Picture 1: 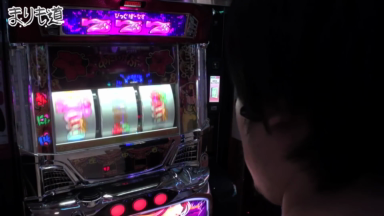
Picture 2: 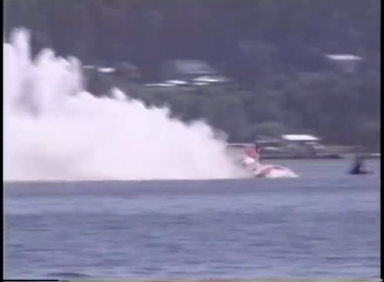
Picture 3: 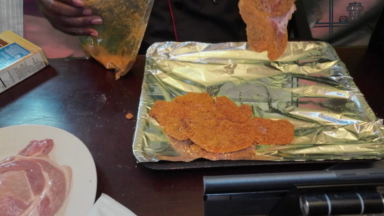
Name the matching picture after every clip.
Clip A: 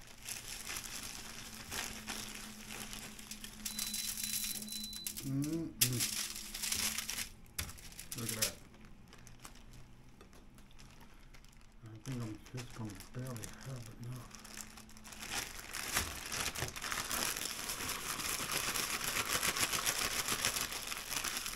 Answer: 3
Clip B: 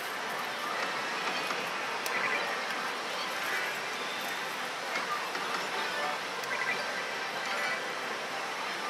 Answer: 1